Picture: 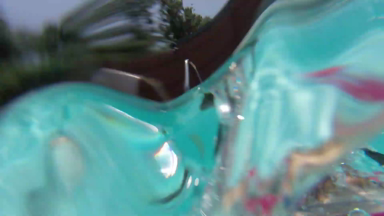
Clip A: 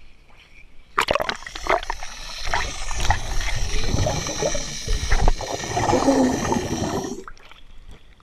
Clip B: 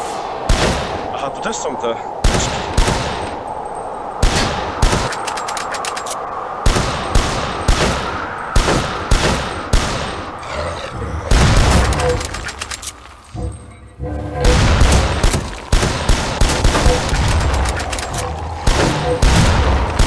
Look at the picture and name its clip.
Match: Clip A